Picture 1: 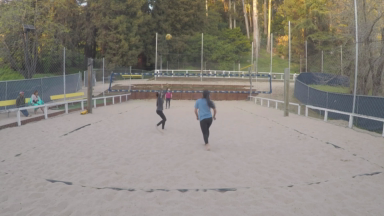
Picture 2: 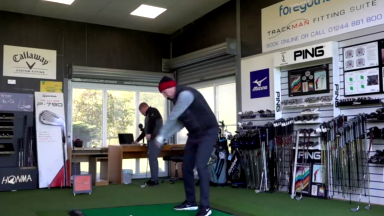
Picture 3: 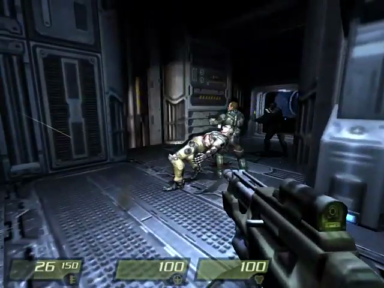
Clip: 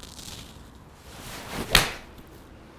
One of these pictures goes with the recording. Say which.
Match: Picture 2